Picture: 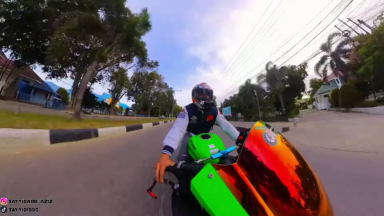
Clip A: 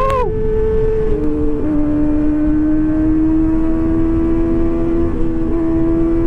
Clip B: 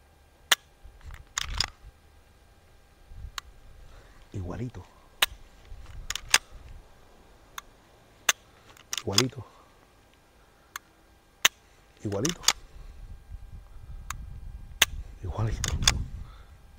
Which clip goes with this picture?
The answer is A